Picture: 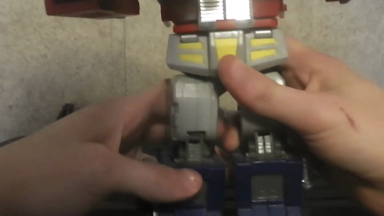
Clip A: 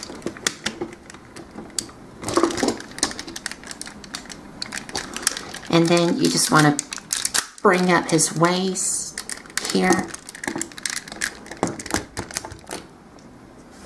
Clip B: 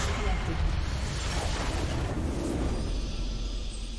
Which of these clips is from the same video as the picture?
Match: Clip A